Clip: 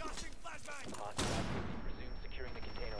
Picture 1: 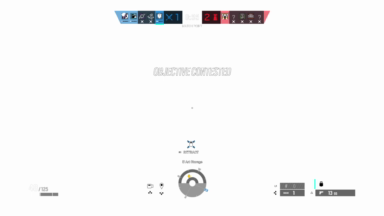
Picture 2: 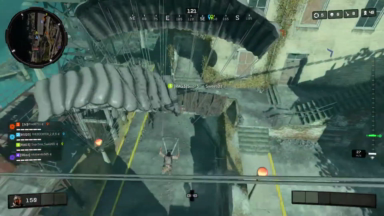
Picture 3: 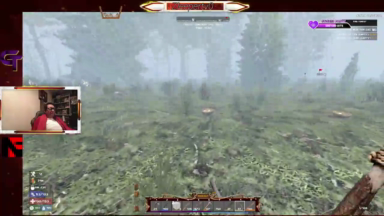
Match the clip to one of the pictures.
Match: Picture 1